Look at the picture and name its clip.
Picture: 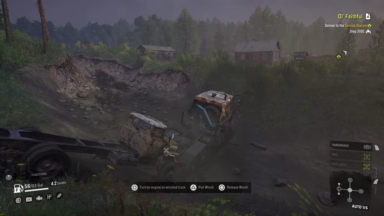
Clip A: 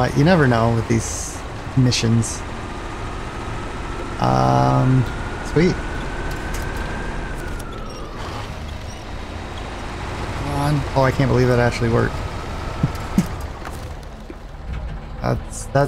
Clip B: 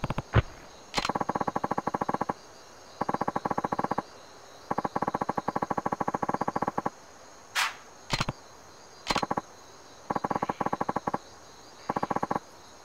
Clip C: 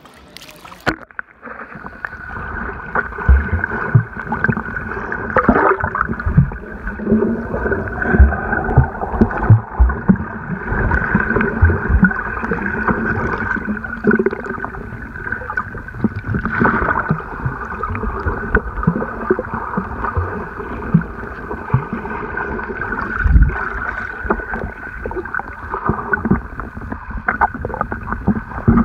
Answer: A